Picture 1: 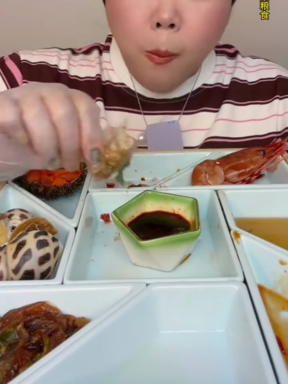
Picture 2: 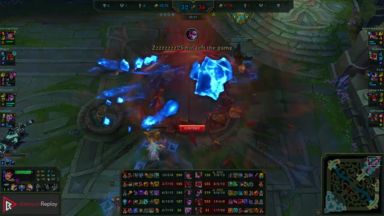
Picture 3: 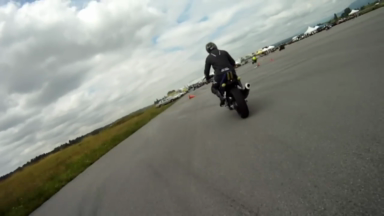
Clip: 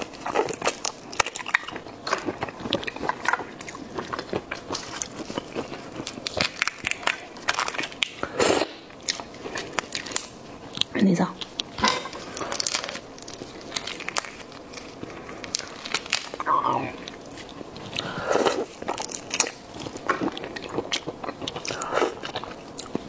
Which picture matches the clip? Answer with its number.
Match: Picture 1